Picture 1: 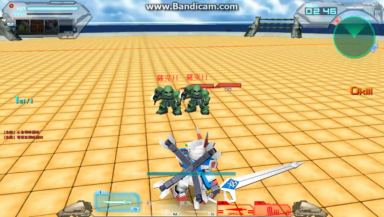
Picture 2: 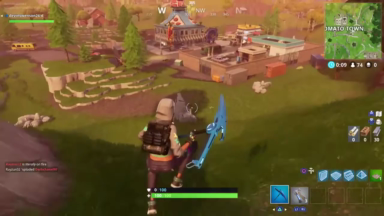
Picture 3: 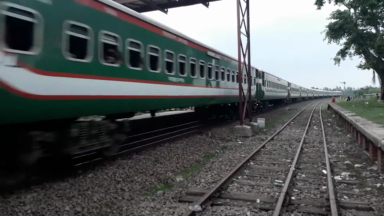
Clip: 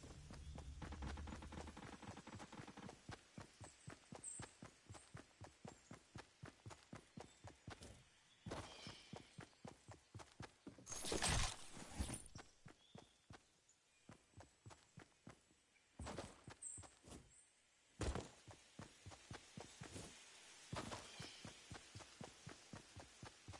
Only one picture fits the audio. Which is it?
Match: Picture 2